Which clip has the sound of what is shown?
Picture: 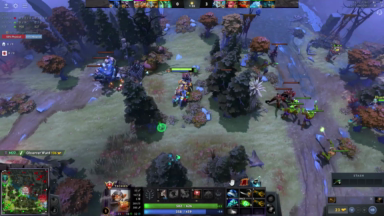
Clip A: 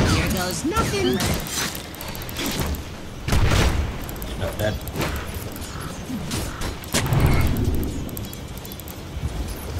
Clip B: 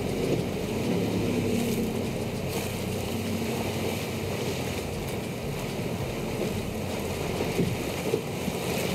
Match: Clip A